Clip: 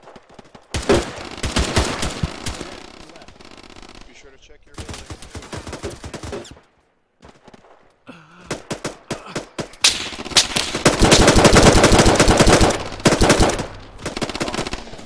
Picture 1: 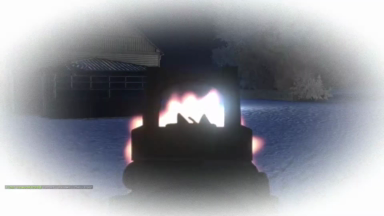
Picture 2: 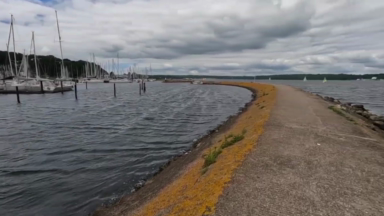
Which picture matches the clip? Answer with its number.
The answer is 1